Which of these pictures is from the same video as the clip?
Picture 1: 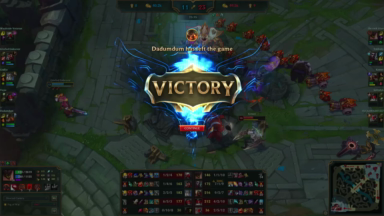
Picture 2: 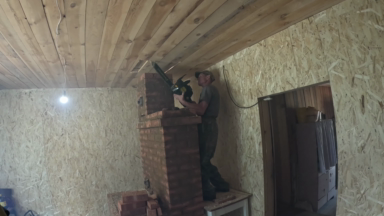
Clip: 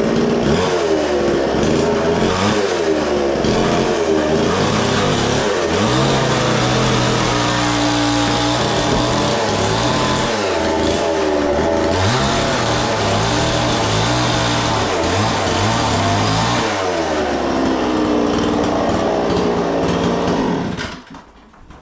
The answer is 2